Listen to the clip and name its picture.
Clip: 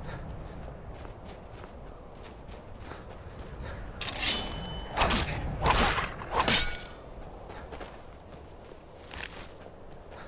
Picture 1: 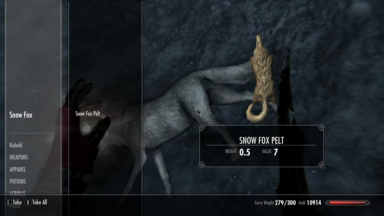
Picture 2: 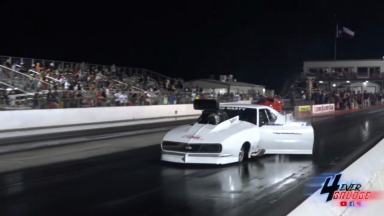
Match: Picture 1